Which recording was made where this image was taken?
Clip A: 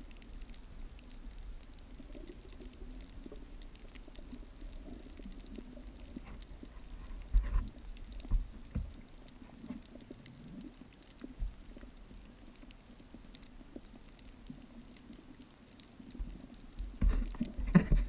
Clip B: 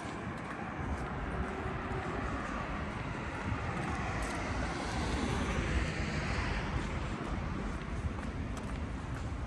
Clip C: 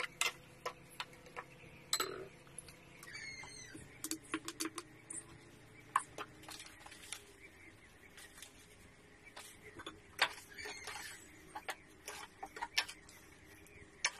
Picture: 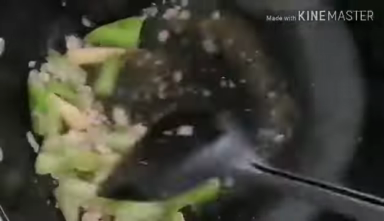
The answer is C